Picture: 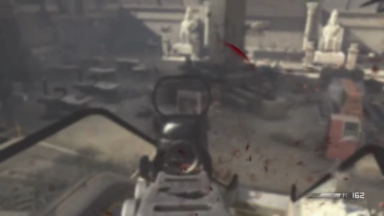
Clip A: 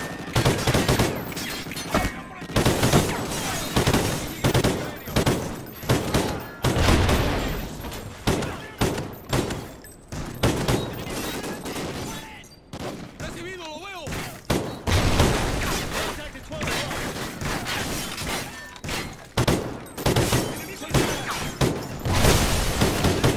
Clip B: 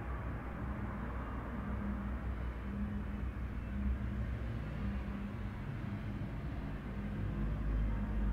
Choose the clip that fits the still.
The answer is A